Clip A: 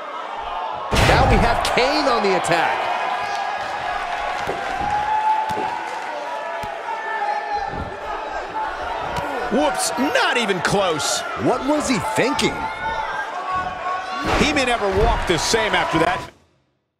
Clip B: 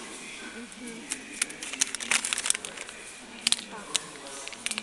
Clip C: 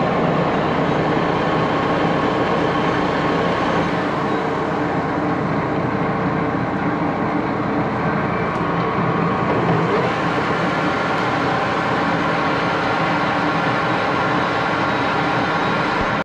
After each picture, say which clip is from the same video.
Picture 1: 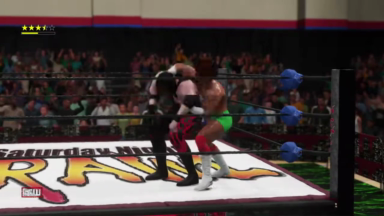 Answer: A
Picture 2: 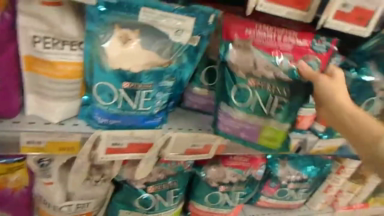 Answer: B